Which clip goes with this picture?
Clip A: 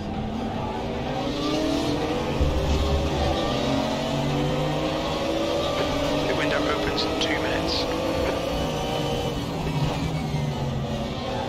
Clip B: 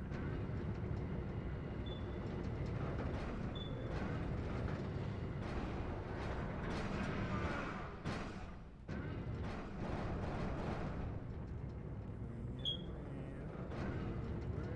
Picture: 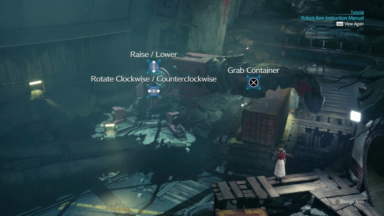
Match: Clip B